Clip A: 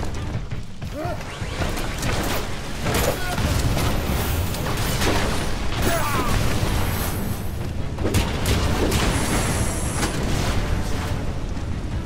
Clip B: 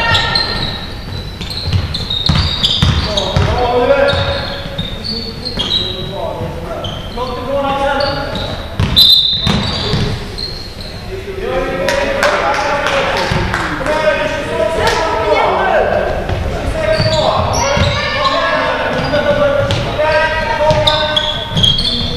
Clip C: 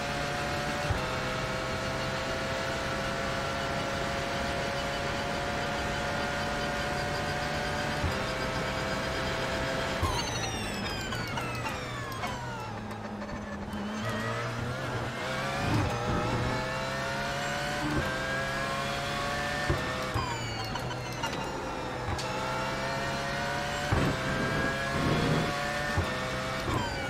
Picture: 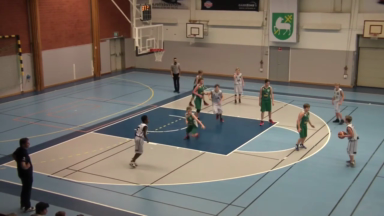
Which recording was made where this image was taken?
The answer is B